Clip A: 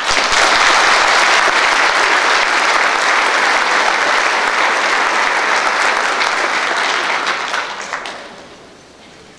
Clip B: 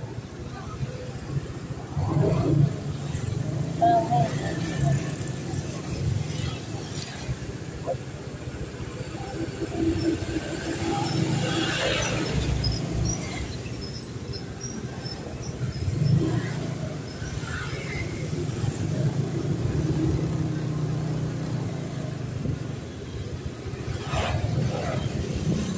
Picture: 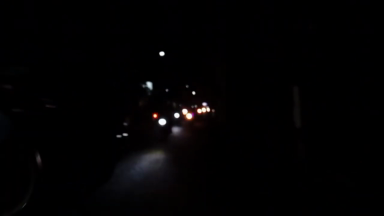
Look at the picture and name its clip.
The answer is B